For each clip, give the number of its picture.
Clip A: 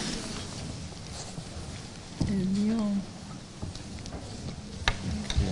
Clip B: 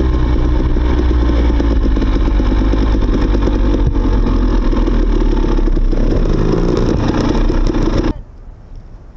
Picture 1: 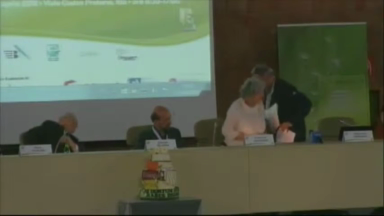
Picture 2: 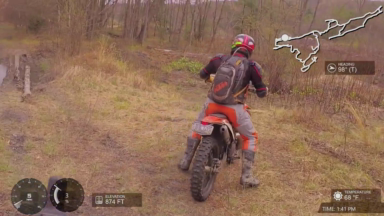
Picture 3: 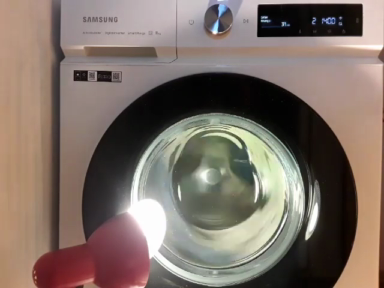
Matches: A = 1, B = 2